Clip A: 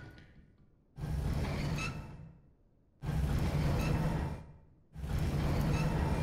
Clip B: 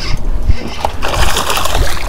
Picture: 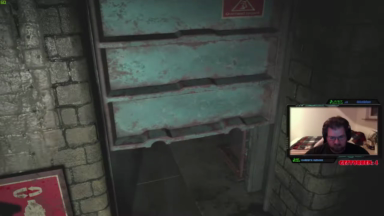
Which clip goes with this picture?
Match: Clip A